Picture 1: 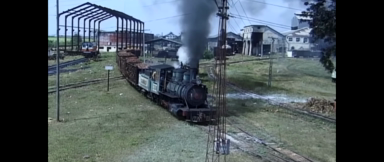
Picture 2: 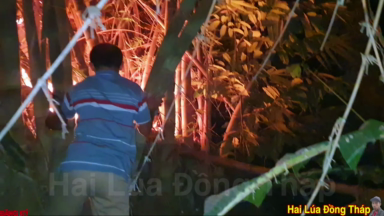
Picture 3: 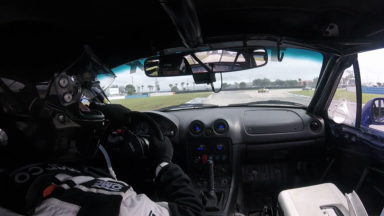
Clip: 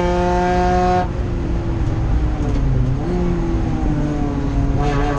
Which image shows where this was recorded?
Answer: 3